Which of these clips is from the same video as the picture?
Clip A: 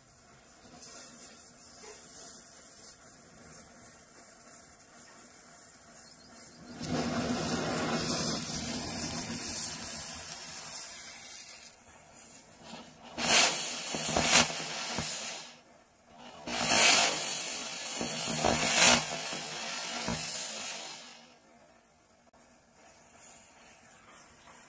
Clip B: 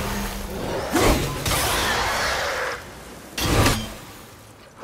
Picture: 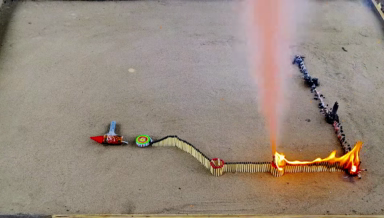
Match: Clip A